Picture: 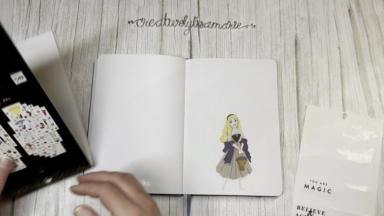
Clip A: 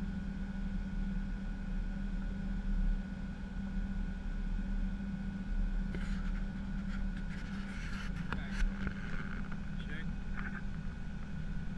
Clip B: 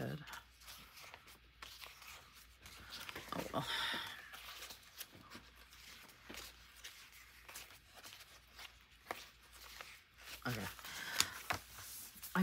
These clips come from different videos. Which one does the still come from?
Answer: B